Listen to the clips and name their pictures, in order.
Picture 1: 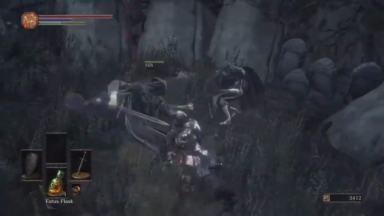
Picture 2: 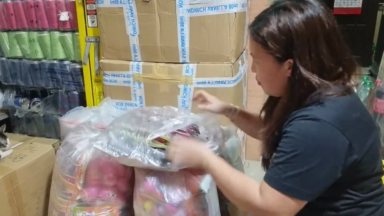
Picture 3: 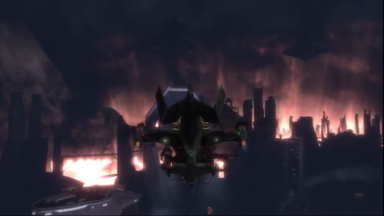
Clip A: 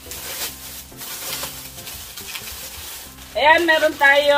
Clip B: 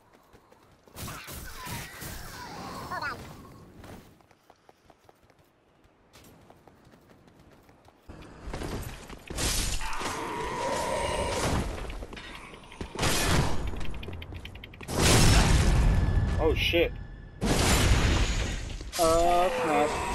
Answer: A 2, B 1